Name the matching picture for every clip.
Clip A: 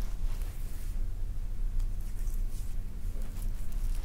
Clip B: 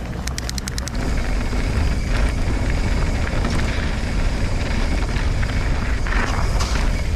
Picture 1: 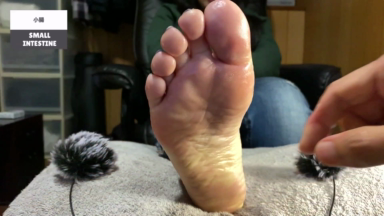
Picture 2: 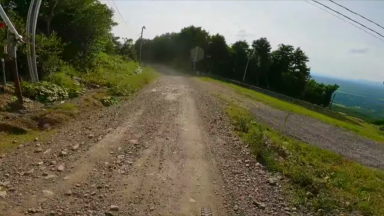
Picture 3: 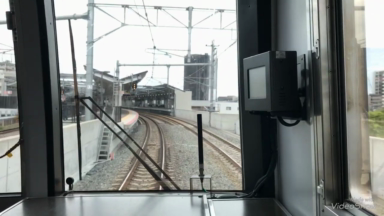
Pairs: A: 1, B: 2